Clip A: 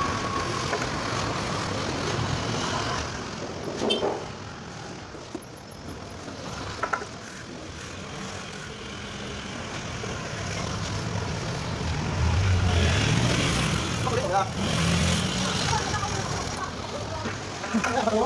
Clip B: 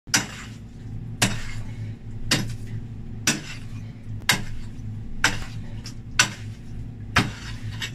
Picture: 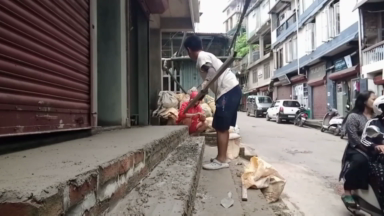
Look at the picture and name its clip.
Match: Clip A